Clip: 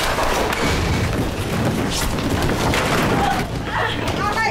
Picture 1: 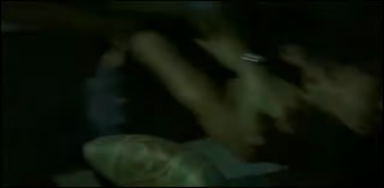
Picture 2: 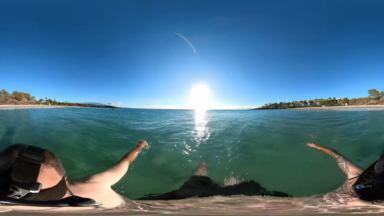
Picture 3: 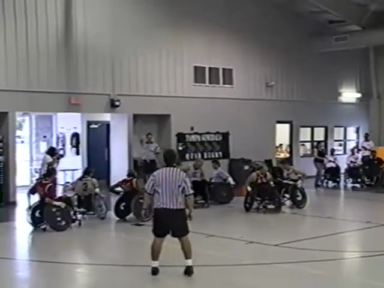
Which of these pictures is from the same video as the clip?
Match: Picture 1